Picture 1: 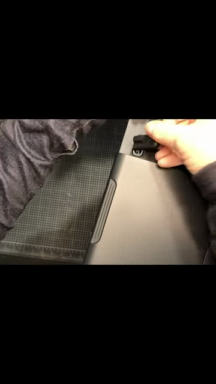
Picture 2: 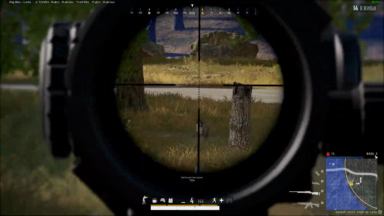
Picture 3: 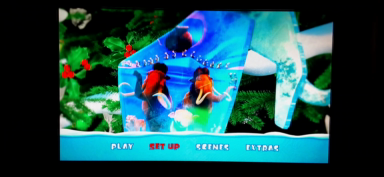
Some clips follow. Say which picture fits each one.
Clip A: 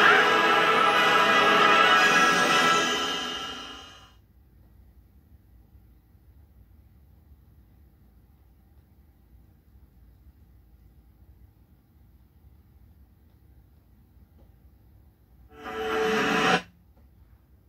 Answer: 3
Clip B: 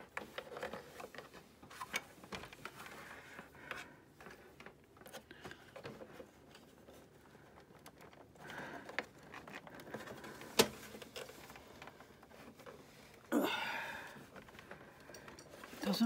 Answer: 1